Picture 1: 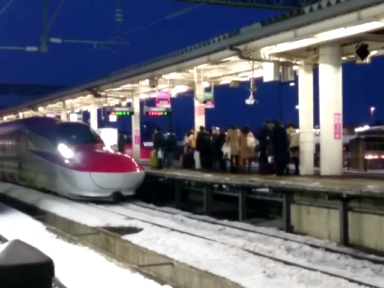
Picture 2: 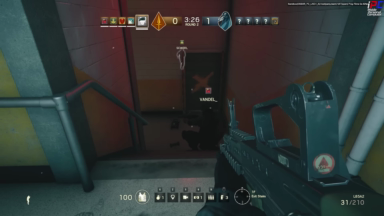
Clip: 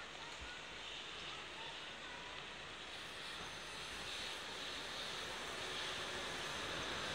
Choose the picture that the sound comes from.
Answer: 1